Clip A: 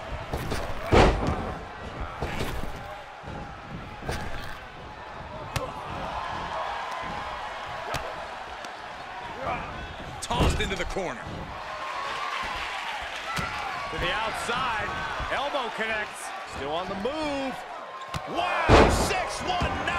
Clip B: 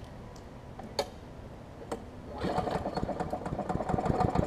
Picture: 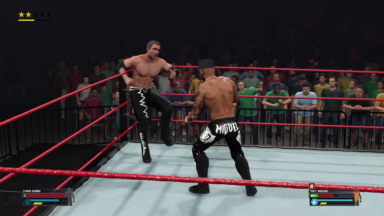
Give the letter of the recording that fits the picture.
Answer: A